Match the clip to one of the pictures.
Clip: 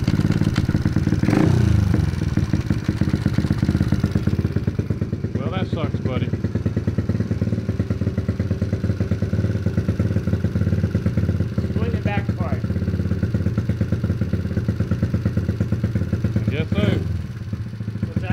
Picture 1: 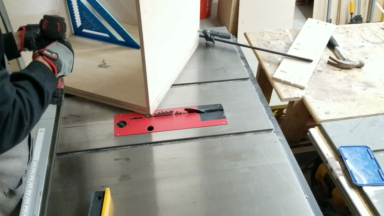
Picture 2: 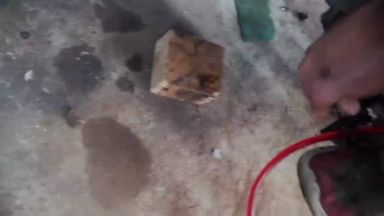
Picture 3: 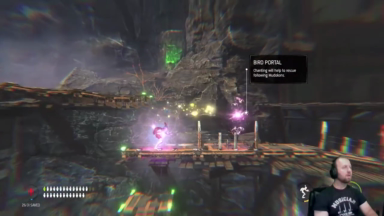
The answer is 2